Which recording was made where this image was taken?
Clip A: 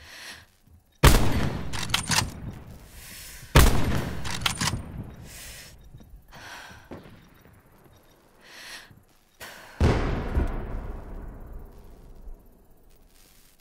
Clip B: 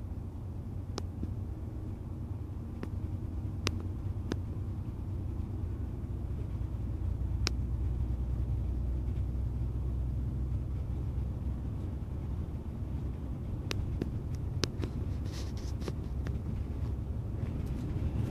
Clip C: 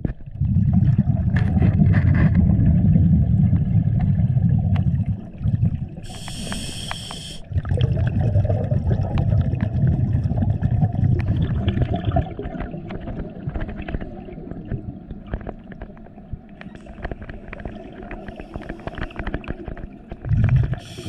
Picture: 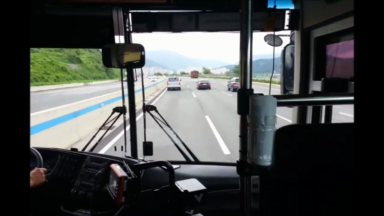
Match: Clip B